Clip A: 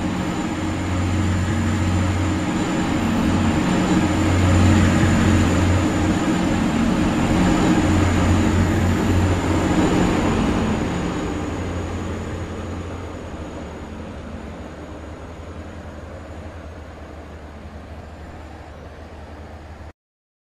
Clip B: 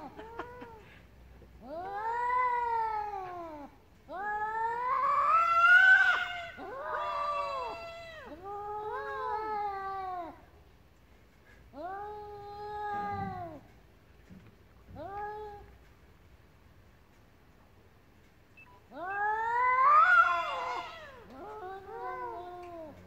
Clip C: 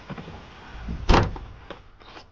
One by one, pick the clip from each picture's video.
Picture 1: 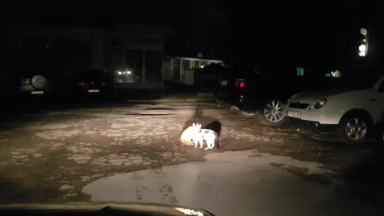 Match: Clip B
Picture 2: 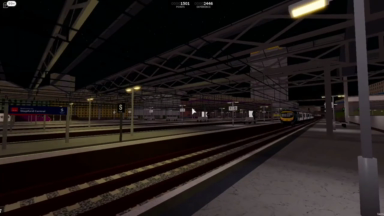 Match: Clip A